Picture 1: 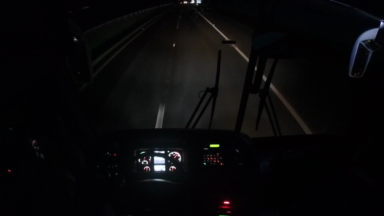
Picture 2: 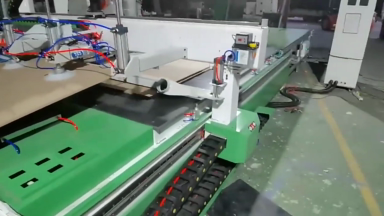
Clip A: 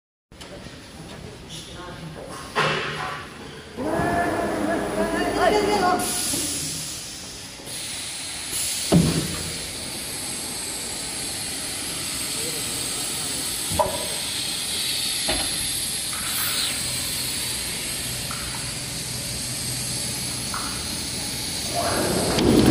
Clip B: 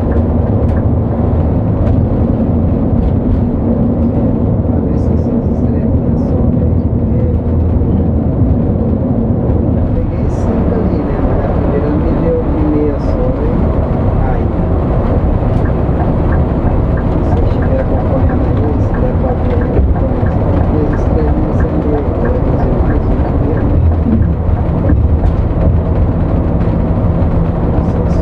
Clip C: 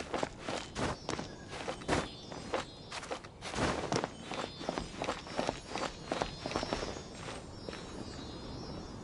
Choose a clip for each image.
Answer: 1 B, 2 A